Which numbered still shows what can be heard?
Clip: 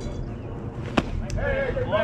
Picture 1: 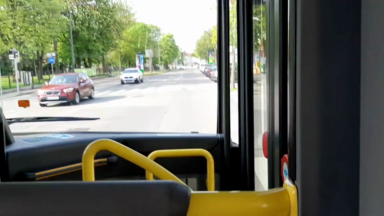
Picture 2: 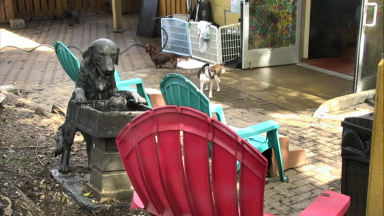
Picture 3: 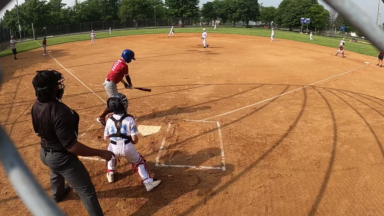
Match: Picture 3